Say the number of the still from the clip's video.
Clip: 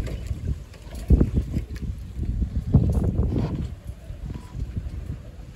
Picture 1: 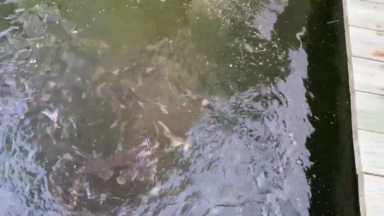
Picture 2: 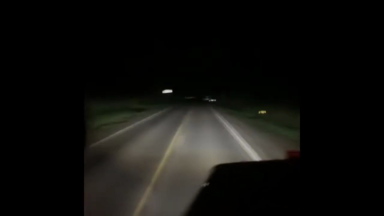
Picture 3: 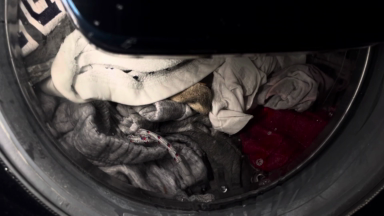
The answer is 1